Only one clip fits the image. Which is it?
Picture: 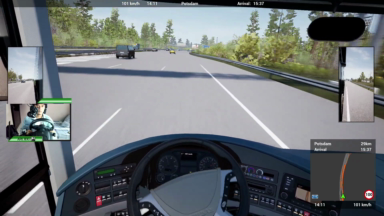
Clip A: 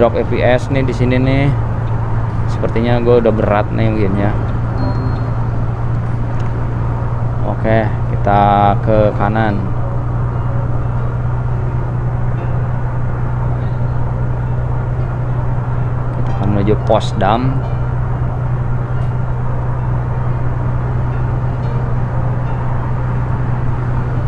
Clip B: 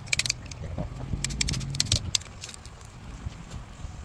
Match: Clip A